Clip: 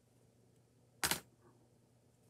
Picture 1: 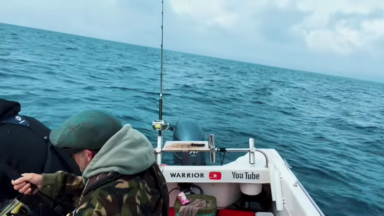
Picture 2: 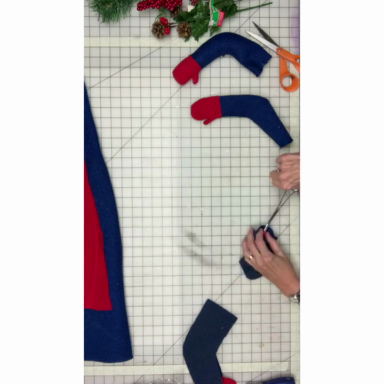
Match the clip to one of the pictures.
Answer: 2